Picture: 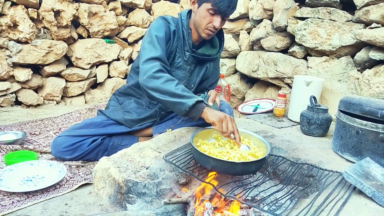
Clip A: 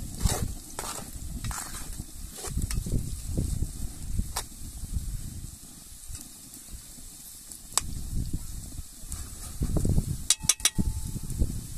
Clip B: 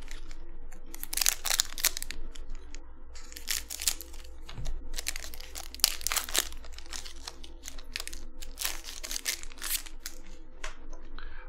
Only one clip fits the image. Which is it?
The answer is A